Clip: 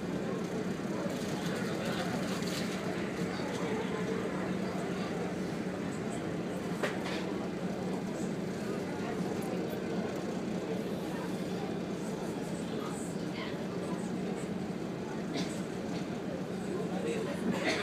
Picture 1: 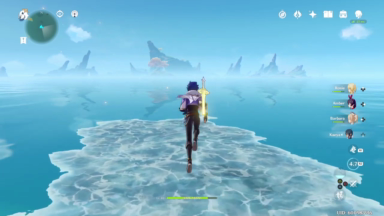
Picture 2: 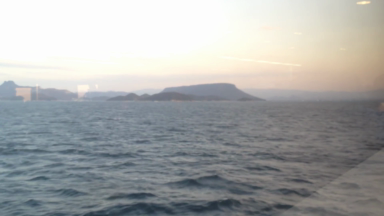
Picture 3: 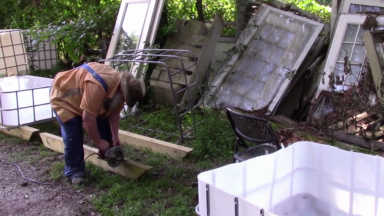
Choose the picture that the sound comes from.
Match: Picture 2